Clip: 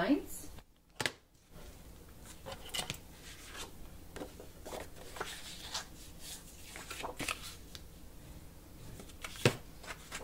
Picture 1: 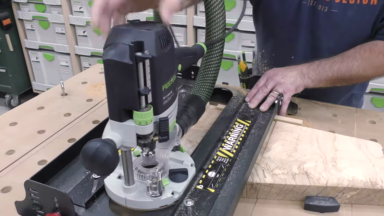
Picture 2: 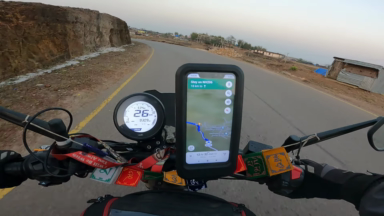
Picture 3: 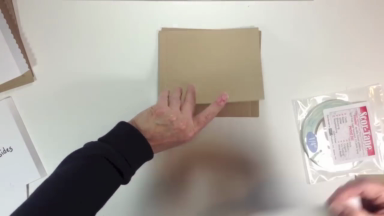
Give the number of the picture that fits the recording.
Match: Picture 3